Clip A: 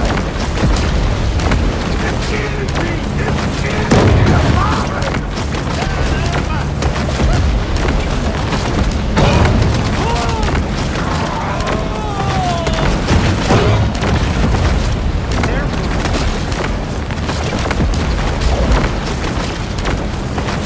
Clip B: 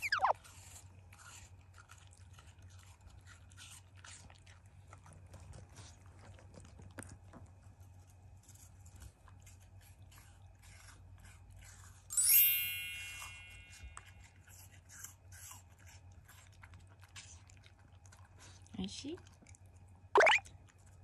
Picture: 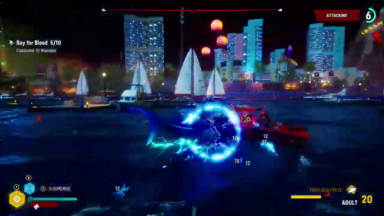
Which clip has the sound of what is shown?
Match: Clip A